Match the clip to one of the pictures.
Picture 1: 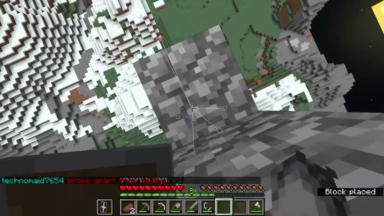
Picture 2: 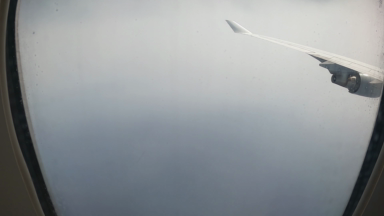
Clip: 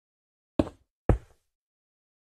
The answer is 1